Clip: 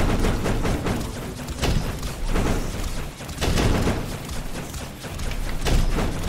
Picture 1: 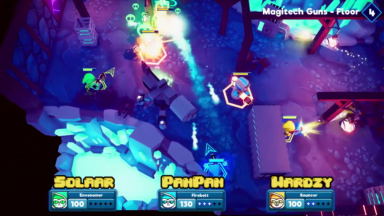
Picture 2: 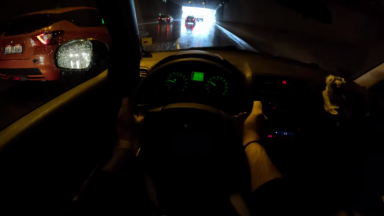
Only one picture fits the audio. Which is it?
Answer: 1